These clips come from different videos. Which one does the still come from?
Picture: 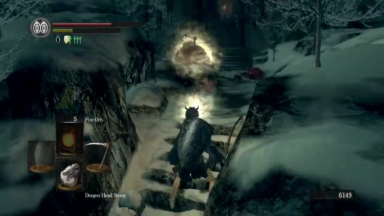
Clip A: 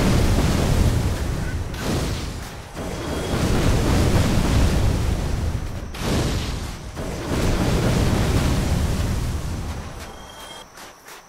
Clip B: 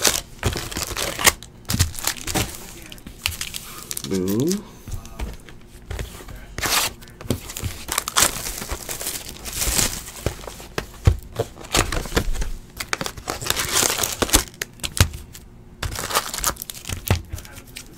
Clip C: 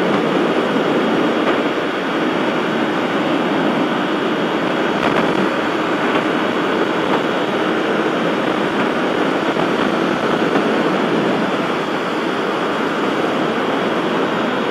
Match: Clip A